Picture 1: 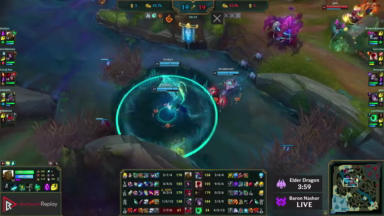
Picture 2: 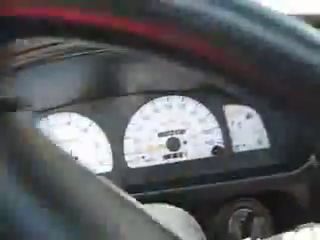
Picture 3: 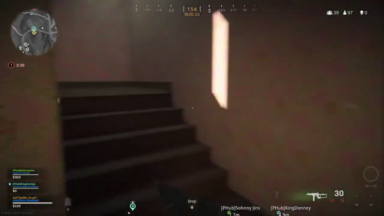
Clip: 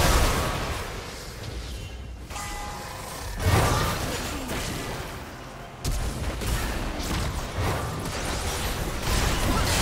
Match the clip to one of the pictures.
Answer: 1